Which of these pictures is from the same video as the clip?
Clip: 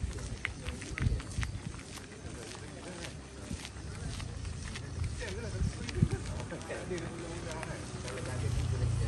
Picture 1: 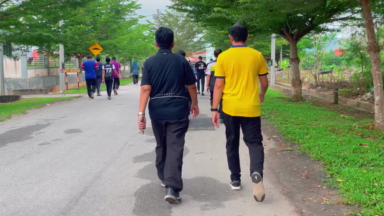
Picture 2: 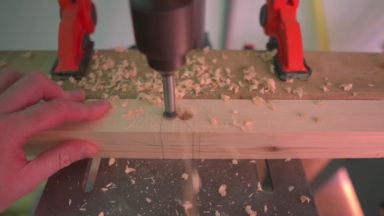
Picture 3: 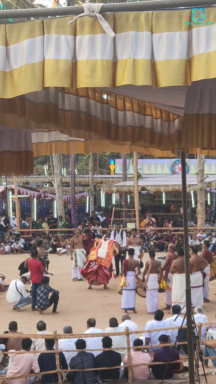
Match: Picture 1